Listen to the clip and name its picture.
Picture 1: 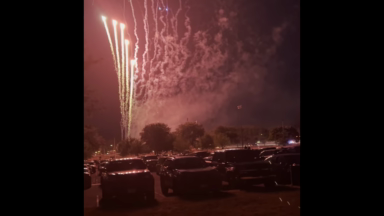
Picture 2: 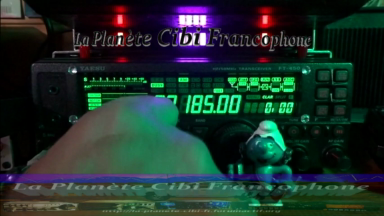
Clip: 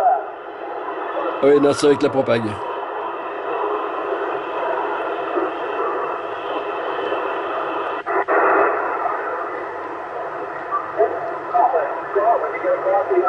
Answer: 2